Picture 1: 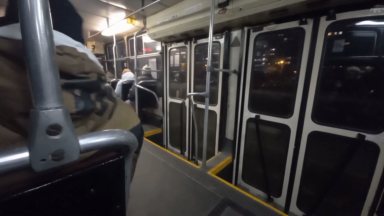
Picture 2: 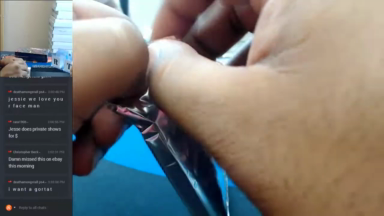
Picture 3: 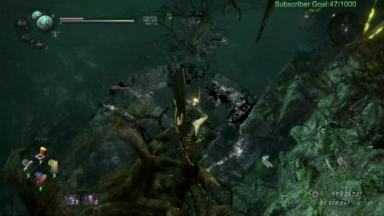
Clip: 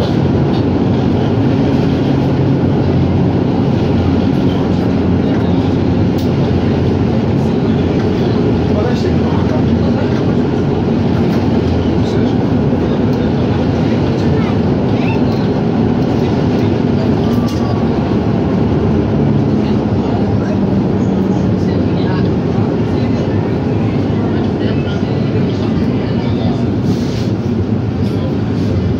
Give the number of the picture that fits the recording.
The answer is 1